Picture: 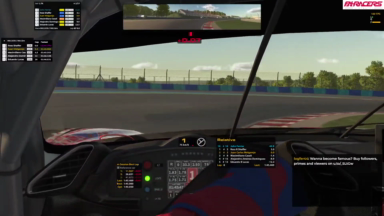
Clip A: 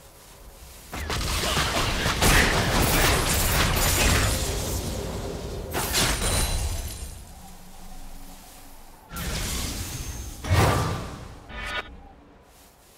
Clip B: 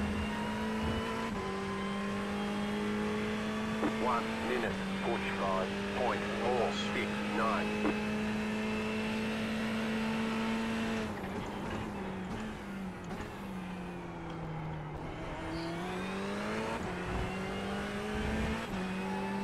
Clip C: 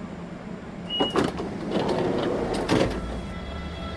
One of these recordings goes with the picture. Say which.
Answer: B